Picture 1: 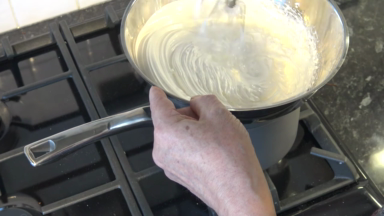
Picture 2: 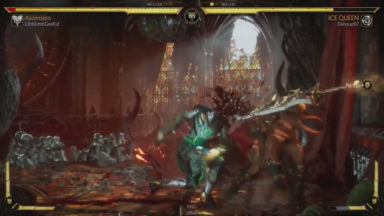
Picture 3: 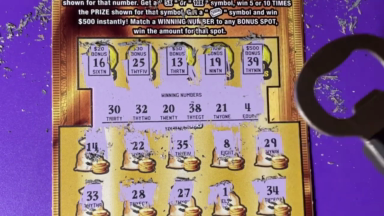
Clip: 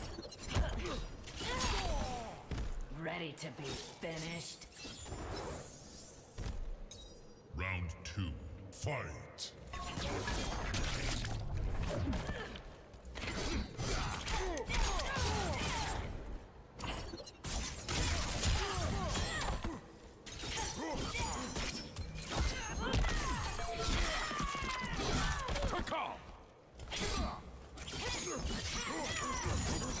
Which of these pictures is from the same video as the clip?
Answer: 2